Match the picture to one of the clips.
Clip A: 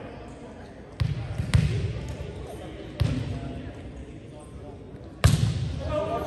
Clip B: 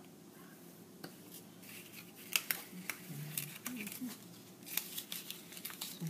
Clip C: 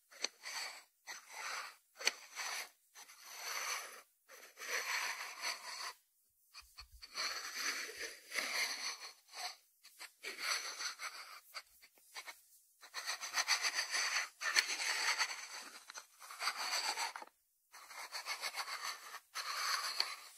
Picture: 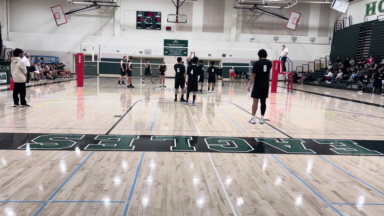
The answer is A